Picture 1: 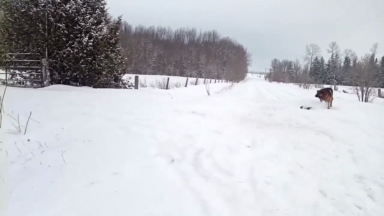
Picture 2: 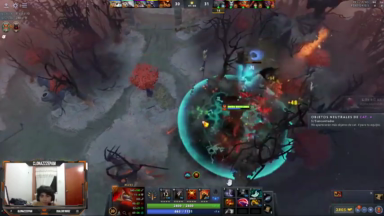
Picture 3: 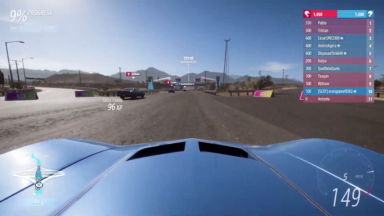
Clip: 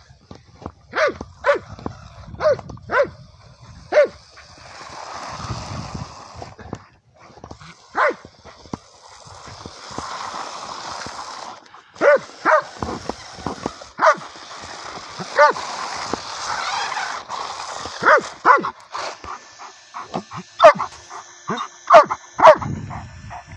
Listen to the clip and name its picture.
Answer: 1